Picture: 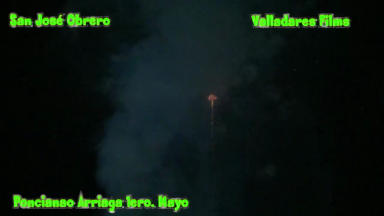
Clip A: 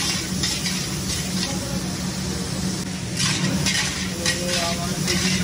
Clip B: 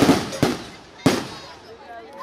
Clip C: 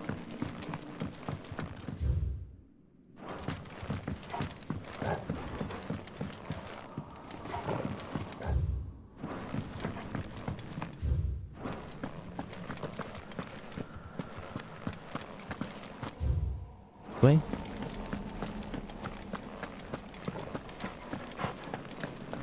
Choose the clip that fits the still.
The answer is B